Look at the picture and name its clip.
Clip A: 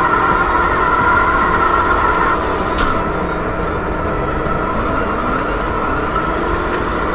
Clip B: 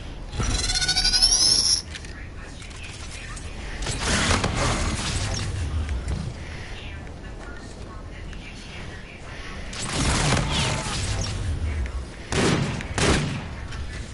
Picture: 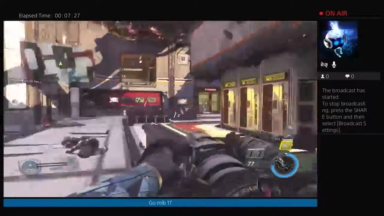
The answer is B